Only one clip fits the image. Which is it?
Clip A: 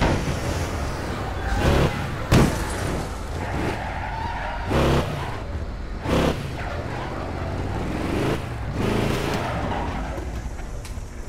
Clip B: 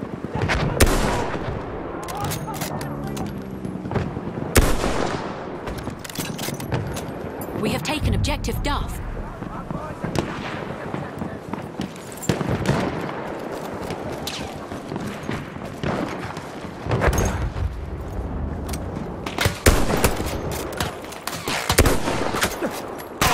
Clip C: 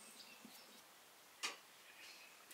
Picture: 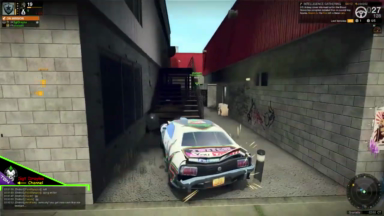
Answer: A